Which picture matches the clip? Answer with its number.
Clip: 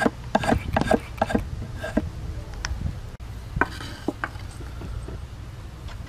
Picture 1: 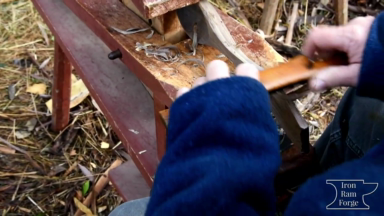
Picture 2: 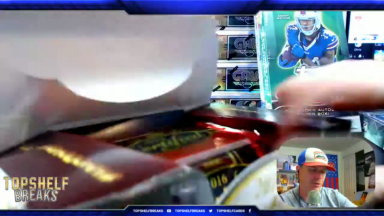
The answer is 1